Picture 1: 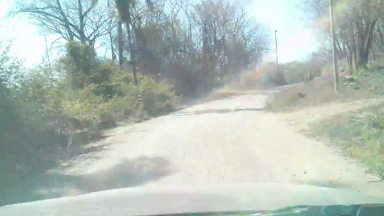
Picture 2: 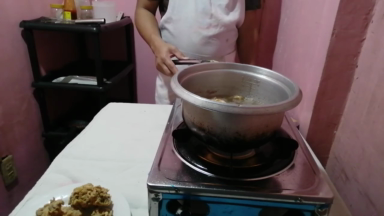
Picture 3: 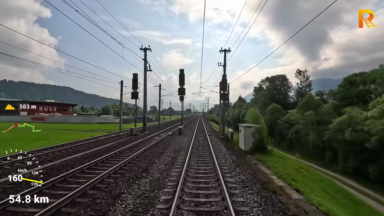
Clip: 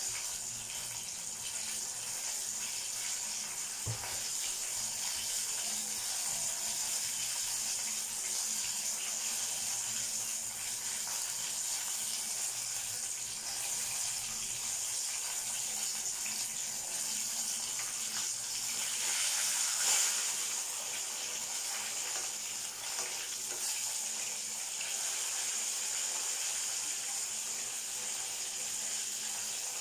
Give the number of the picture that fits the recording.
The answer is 2